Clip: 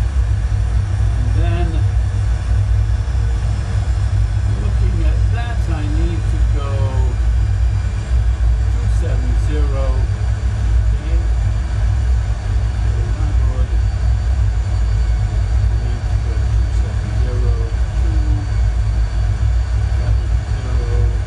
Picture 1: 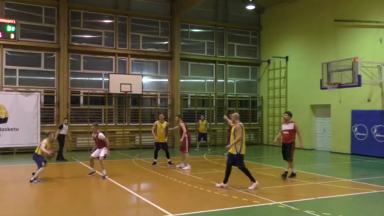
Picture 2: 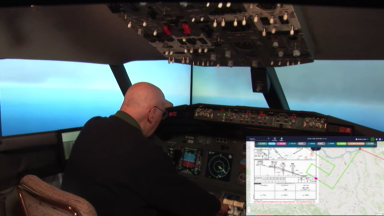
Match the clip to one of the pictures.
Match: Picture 2